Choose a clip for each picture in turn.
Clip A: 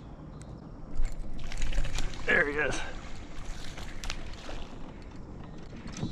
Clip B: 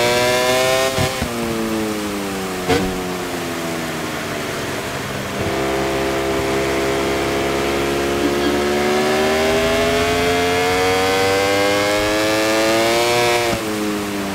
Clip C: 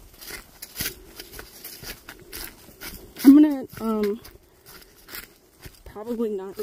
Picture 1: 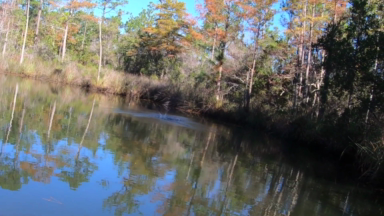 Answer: A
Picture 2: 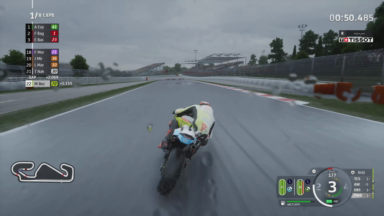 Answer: B